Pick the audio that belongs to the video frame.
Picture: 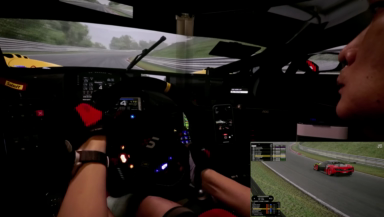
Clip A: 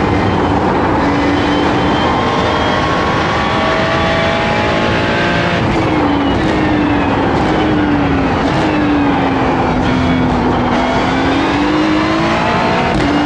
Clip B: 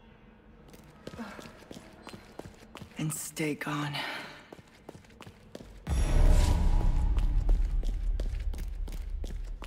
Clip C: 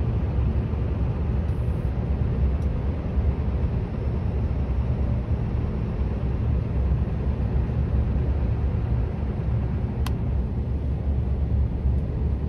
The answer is A